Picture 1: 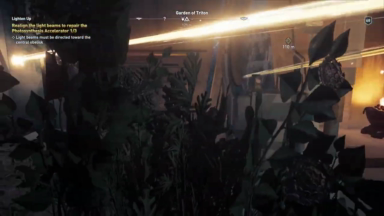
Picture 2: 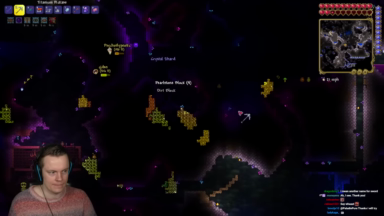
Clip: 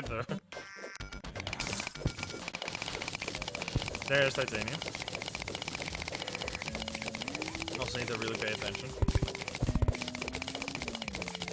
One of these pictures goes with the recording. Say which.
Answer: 2